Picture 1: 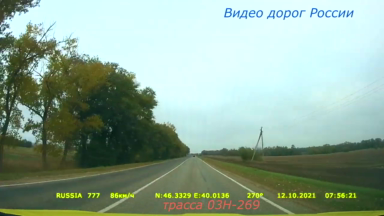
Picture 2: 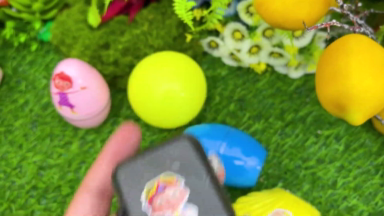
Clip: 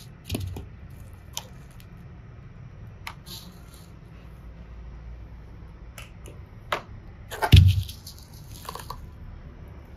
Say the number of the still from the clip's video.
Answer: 2